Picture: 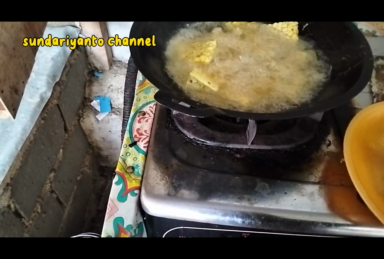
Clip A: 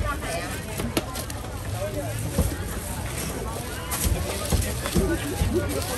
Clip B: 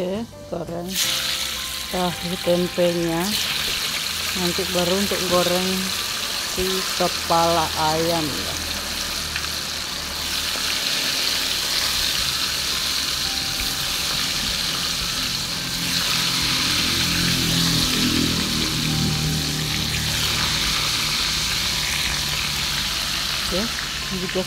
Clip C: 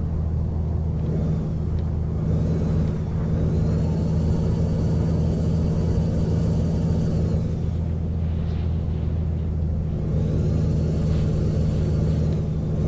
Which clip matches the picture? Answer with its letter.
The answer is B